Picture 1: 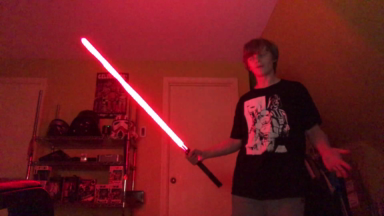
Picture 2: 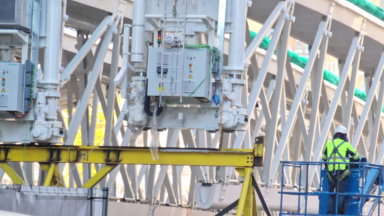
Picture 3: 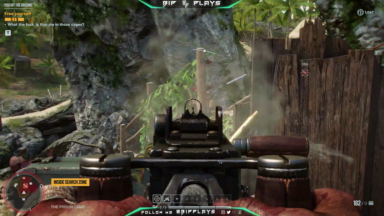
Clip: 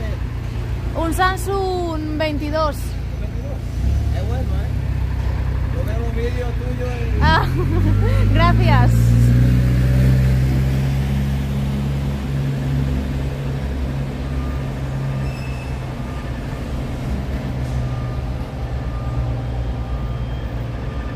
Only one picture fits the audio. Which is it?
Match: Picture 2